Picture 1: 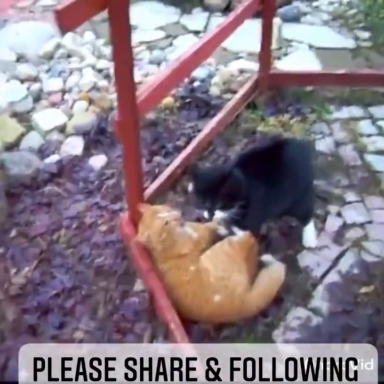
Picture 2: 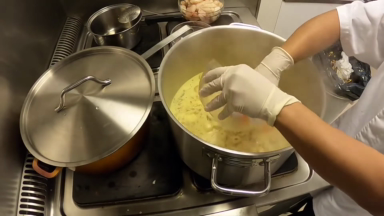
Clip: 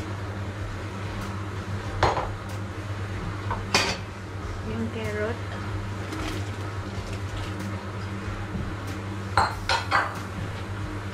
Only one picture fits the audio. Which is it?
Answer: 2